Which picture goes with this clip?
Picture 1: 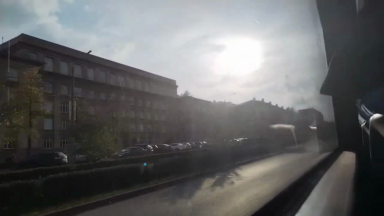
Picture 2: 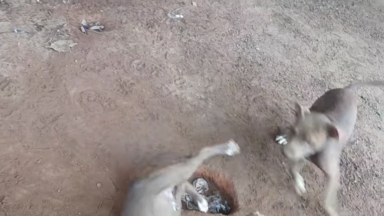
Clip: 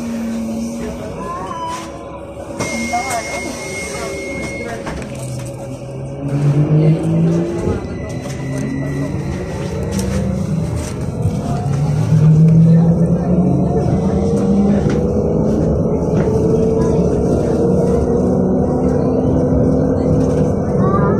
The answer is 1